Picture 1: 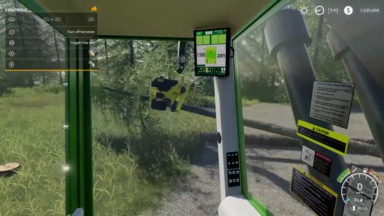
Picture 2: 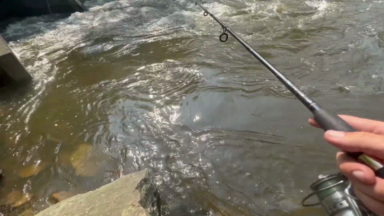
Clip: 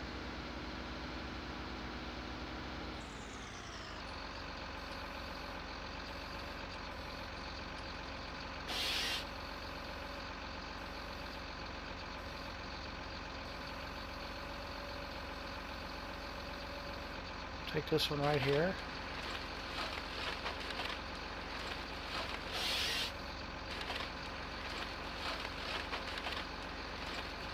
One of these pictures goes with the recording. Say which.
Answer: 1